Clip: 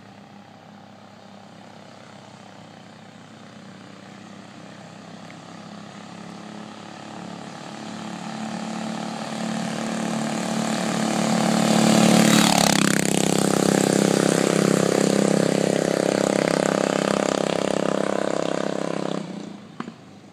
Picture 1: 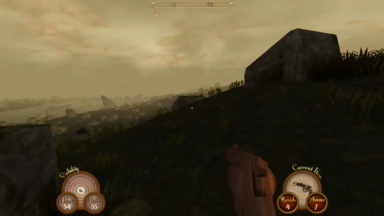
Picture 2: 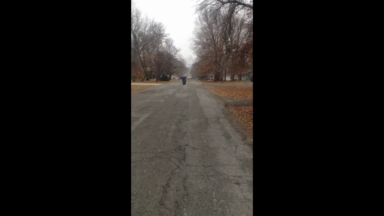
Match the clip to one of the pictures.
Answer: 2